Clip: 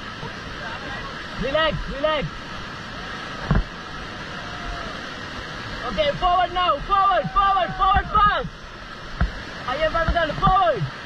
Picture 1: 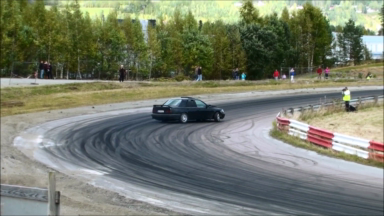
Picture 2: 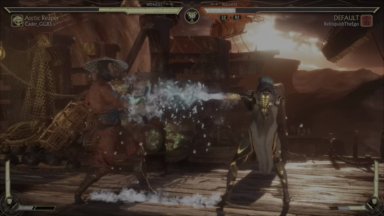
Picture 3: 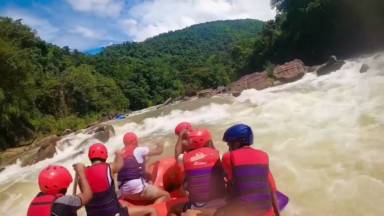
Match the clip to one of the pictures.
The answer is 3